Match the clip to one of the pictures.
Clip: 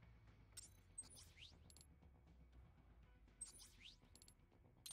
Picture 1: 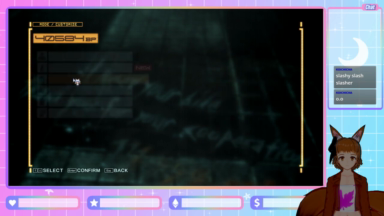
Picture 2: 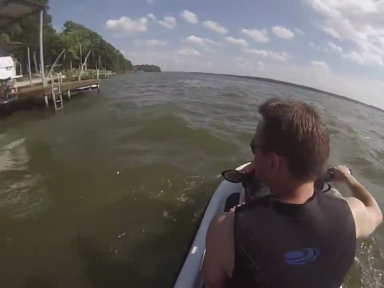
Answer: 1